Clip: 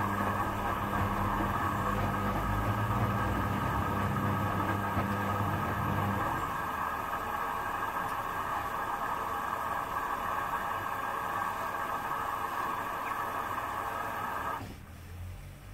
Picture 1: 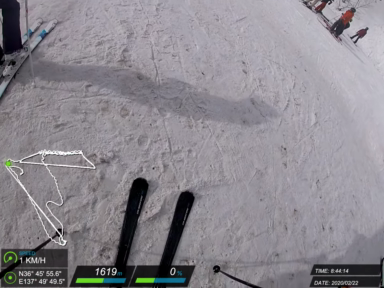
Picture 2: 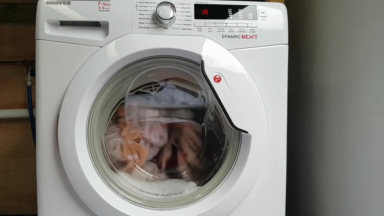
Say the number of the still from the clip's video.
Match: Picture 2